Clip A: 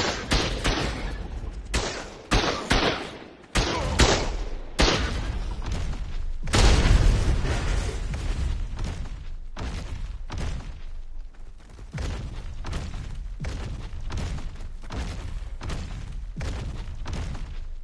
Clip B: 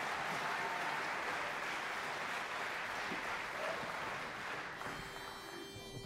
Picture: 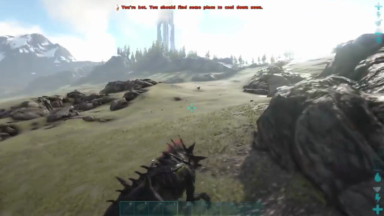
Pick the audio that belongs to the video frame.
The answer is A